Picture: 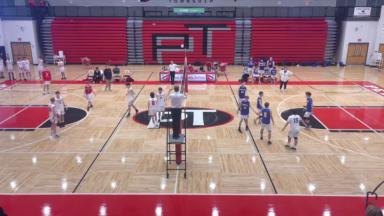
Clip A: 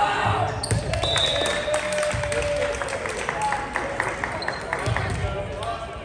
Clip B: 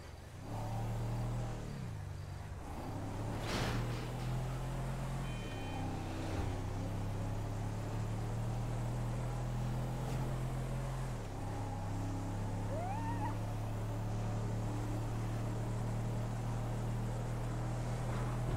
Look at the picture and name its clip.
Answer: A